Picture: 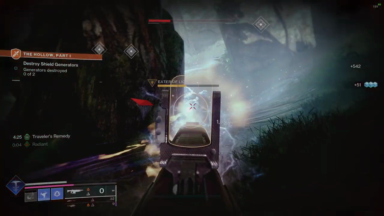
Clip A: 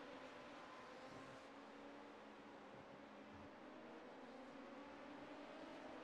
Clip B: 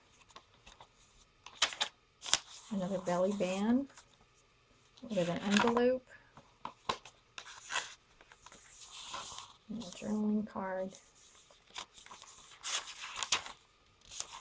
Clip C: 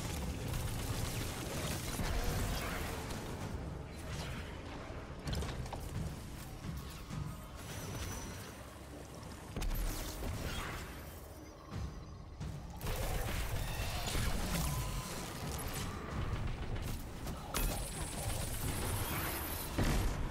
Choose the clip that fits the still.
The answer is C